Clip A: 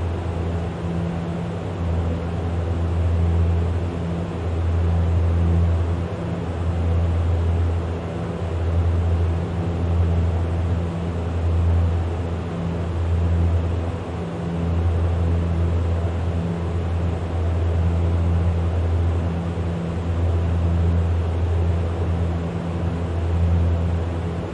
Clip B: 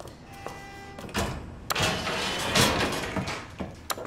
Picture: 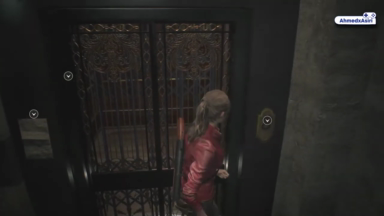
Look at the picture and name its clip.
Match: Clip B